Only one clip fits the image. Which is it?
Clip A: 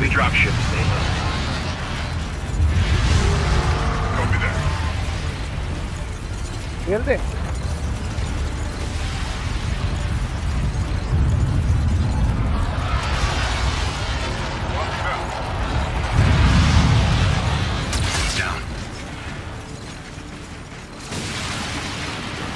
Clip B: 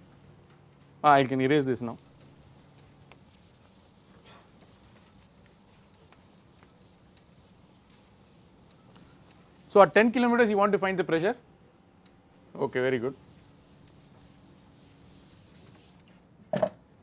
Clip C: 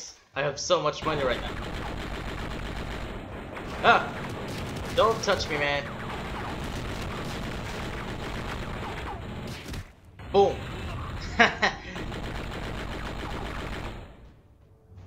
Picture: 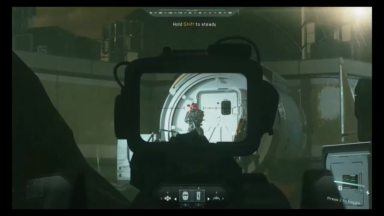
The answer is A